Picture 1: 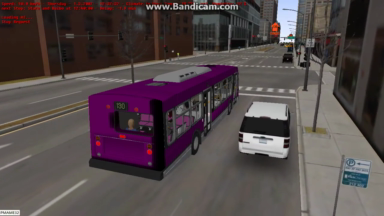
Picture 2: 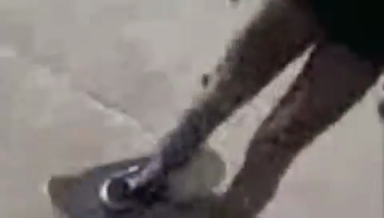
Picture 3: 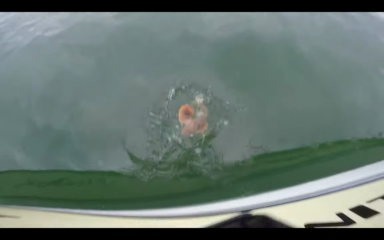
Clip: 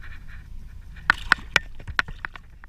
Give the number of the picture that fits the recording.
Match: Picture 3